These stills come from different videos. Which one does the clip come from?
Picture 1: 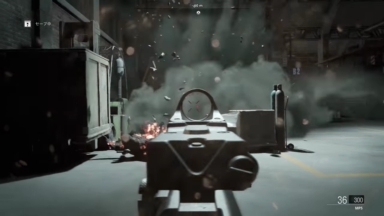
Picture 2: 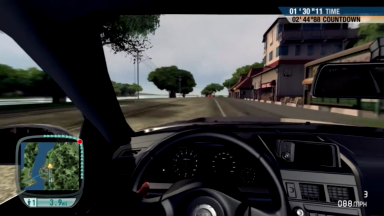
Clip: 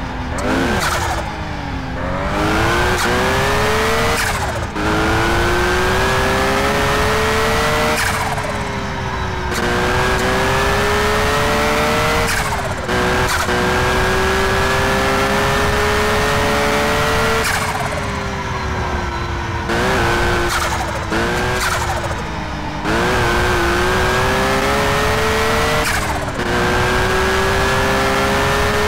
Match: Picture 2